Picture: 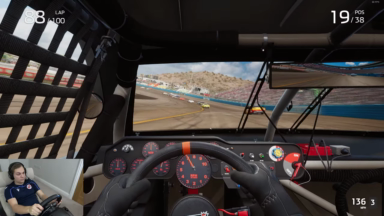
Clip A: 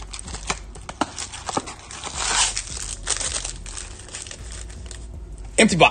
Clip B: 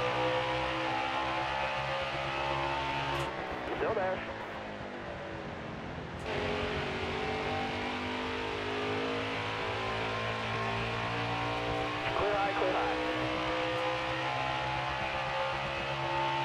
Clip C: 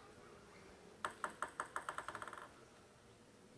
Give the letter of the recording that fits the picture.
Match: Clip B